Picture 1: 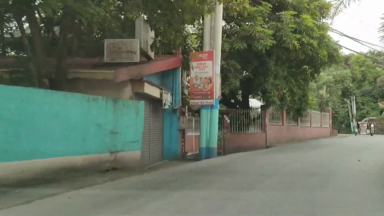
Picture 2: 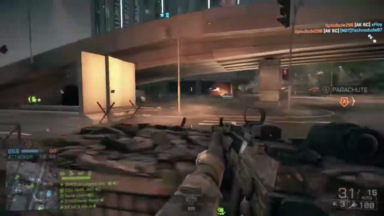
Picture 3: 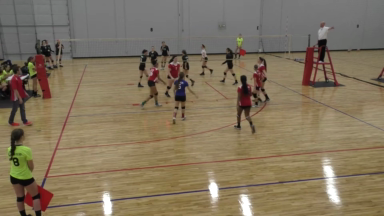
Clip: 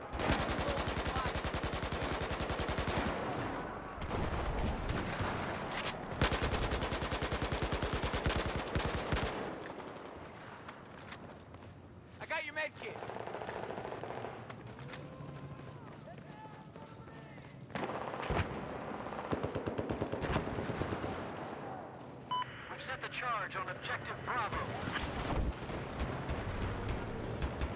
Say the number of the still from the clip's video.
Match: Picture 2